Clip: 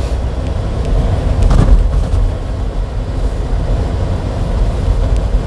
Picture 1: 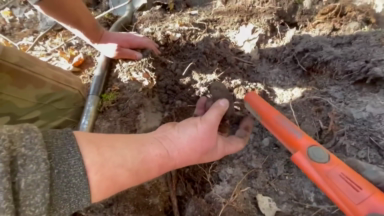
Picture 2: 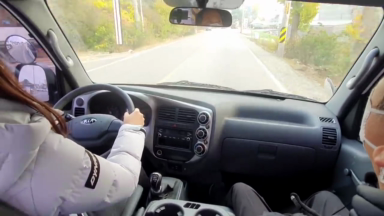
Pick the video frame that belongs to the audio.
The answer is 2